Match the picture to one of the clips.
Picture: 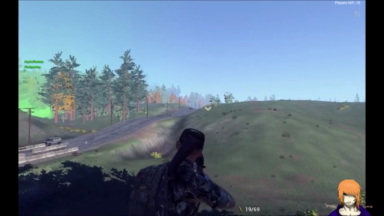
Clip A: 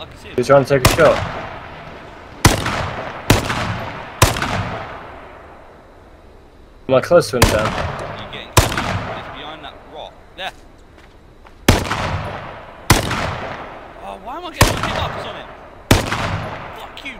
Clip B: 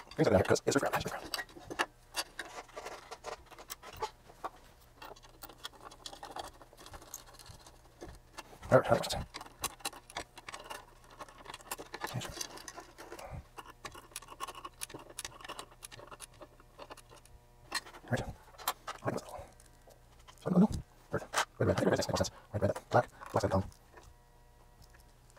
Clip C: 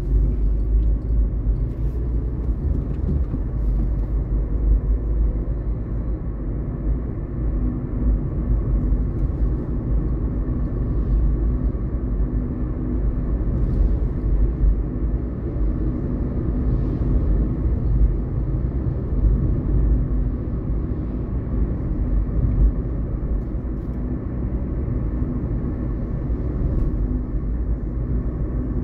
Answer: A